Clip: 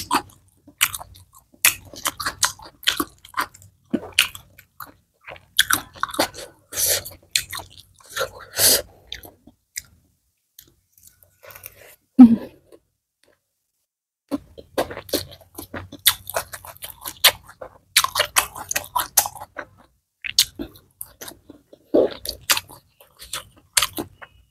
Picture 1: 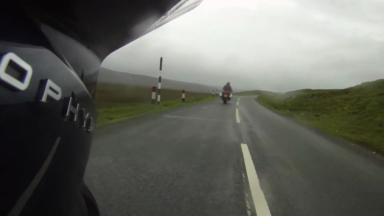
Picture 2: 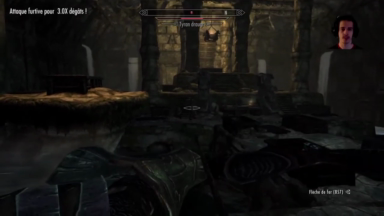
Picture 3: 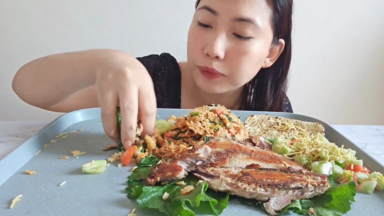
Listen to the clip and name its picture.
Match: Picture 3